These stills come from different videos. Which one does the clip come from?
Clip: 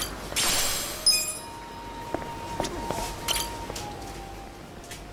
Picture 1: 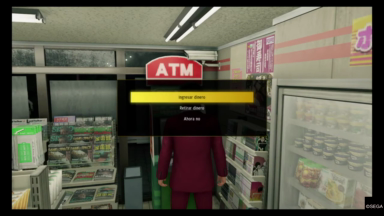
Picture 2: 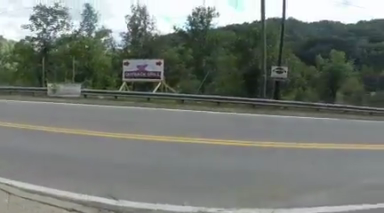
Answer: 1